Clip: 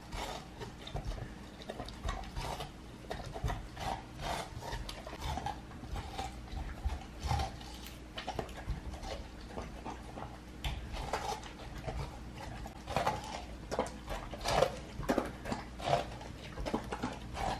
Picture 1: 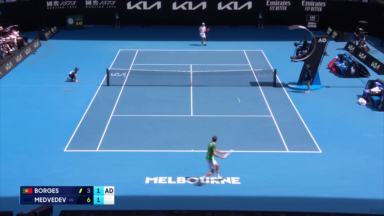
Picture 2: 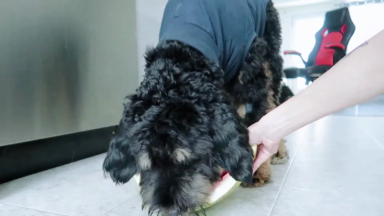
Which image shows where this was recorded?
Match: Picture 2